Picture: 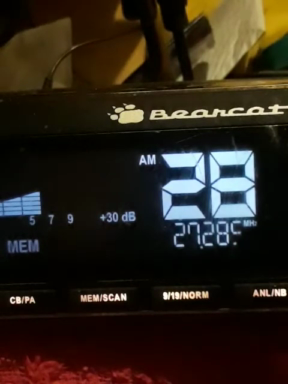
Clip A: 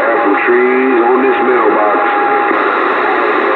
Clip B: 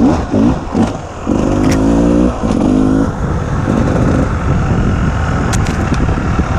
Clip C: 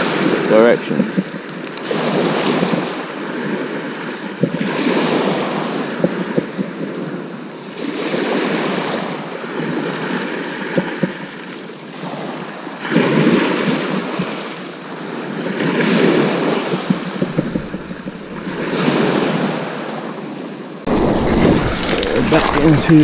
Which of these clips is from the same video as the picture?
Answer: A